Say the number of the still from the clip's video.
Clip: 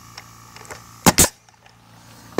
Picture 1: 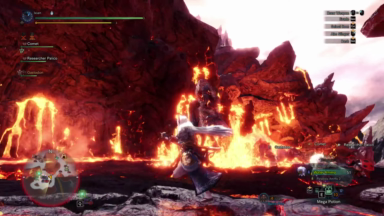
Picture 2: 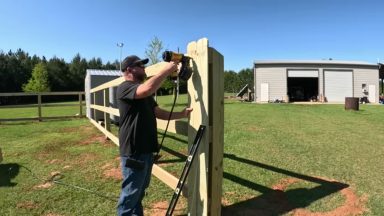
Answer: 2